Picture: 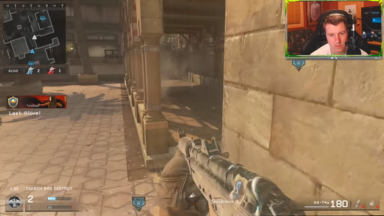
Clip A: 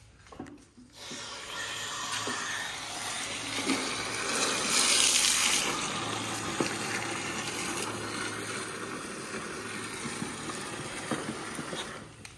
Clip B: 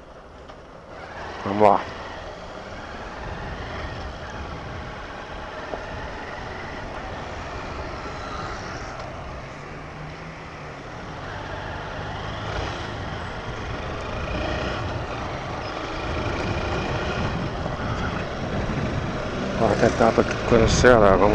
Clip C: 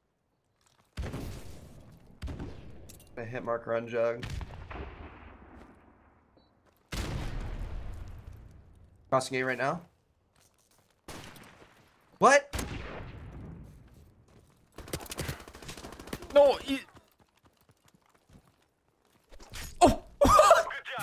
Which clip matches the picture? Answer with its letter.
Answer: C